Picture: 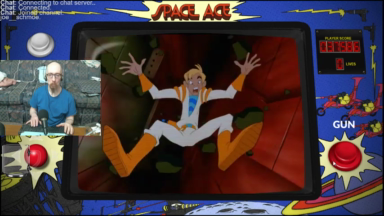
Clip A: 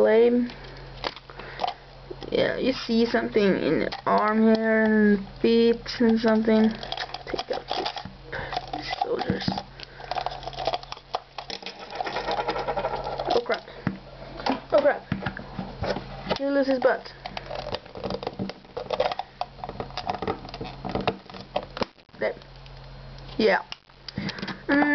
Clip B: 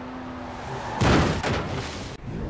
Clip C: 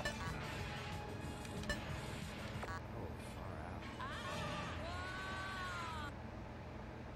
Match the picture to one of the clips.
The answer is C